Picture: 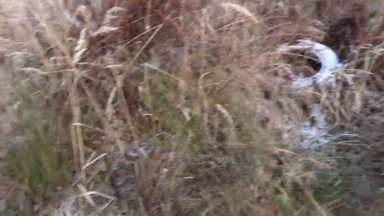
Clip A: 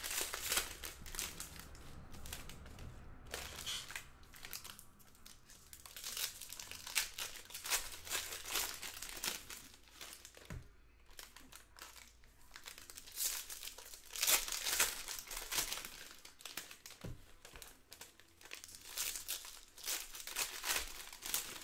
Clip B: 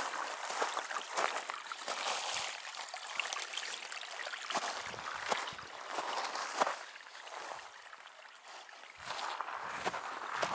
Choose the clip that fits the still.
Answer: B